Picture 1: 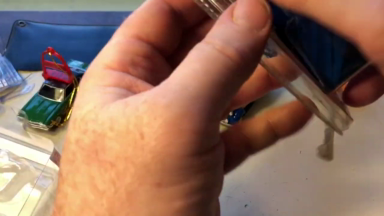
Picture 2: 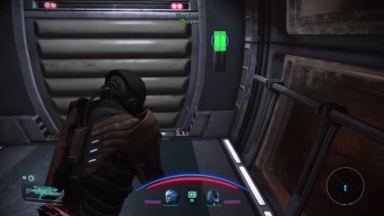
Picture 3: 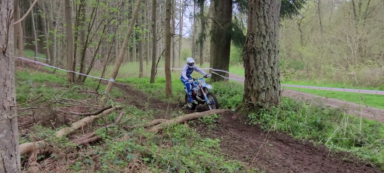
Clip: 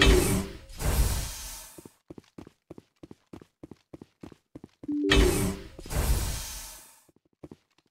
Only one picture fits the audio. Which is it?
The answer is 2